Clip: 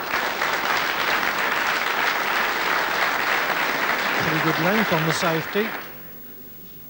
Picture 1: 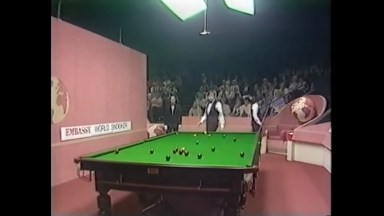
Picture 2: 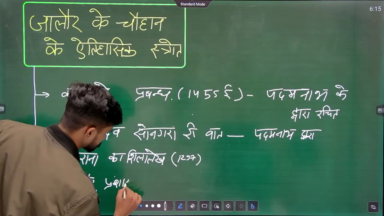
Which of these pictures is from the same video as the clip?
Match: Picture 1